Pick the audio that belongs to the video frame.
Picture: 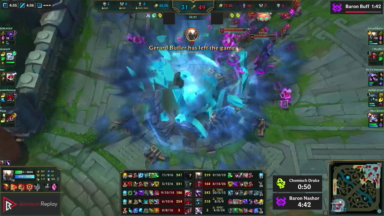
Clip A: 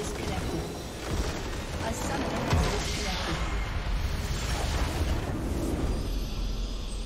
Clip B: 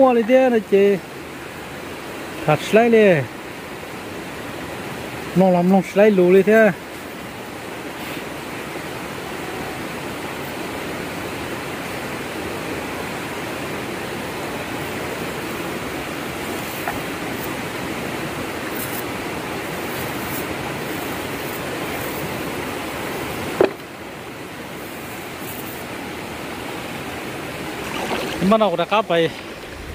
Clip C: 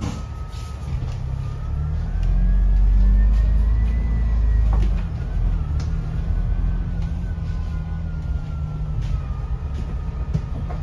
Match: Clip A